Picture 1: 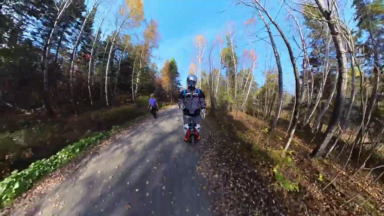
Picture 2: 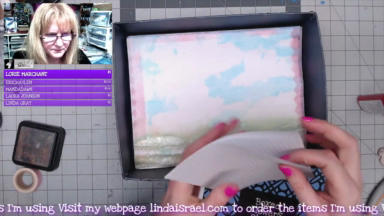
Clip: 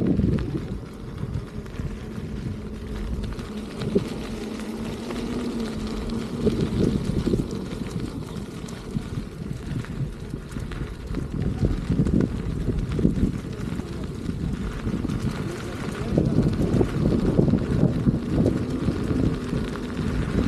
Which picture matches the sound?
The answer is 1